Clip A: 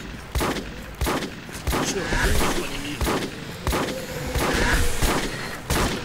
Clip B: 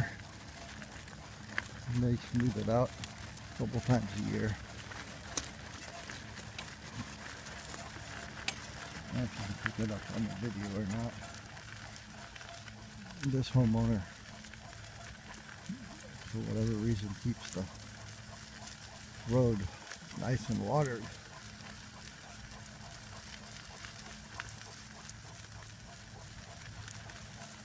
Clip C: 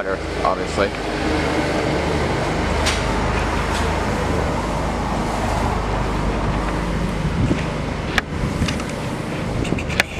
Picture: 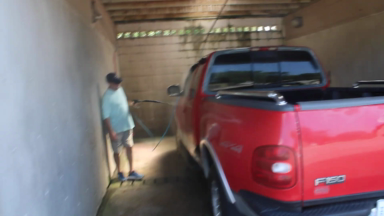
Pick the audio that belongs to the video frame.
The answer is C